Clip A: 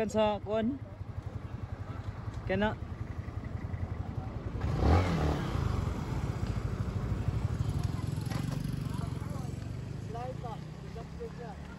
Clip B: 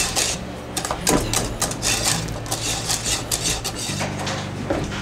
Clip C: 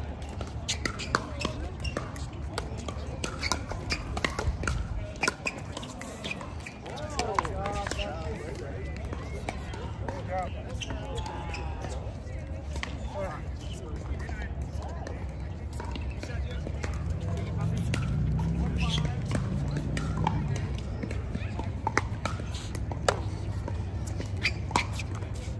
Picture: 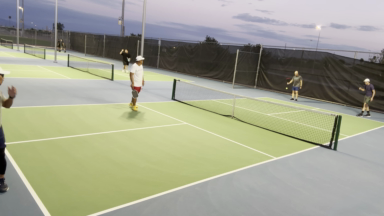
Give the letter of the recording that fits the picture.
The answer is C